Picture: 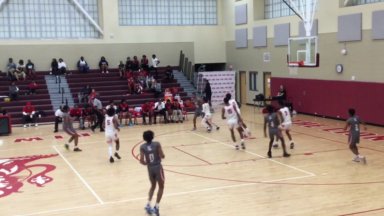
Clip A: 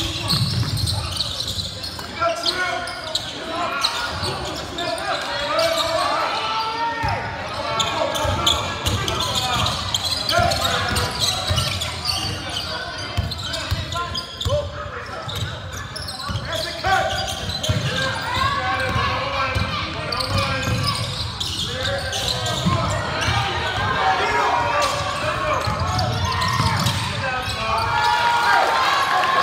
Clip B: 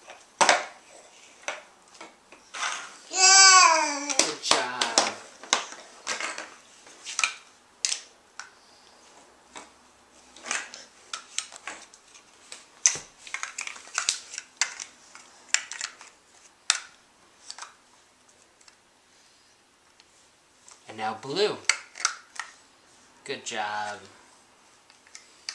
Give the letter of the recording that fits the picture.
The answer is A